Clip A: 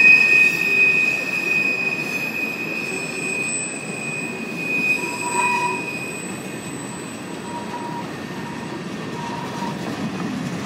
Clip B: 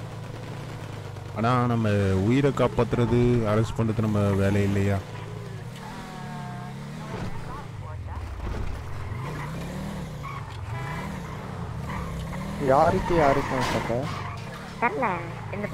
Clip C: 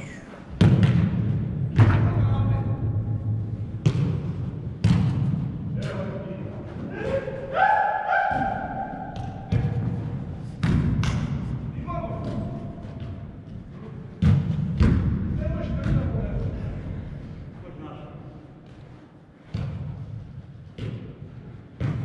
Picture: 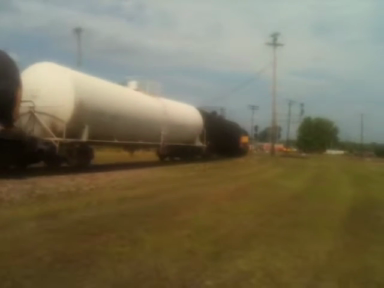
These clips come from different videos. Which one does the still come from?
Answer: A